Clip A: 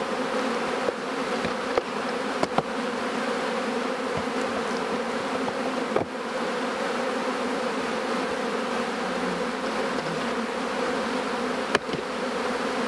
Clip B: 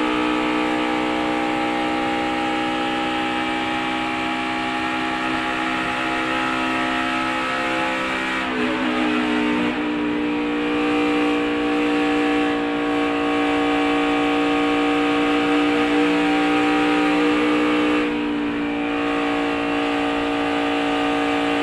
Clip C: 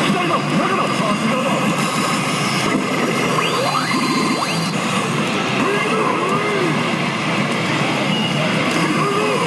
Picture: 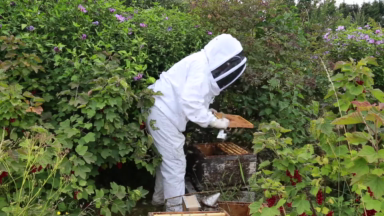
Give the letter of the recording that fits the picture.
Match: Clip A